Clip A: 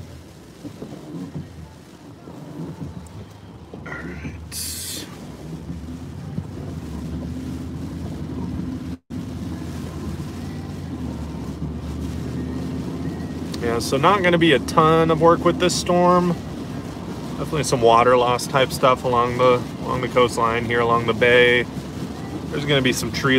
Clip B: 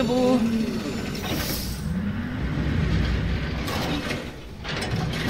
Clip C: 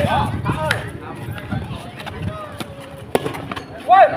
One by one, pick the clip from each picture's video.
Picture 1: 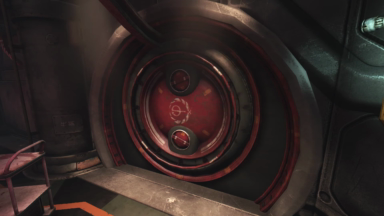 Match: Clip B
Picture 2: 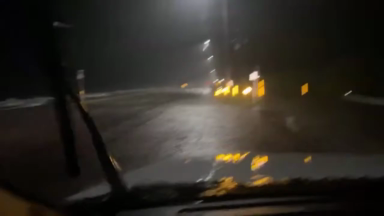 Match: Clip A